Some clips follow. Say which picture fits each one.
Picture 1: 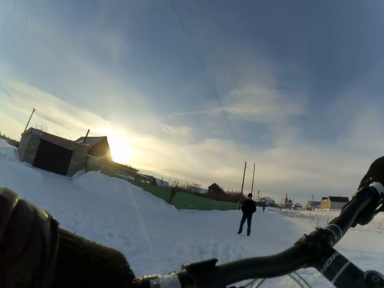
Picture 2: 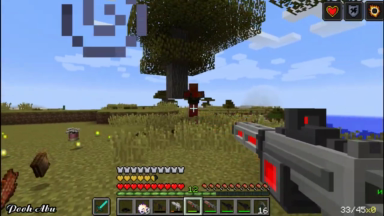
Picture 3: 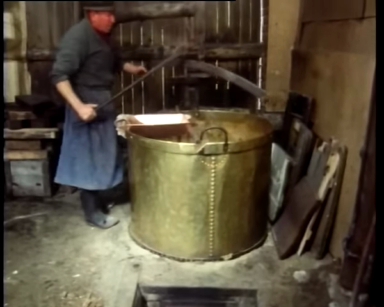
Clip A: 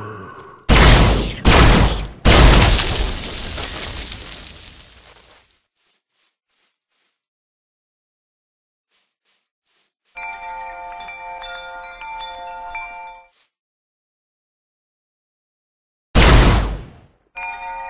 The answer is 2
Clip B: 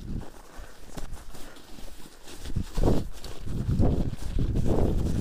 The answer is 1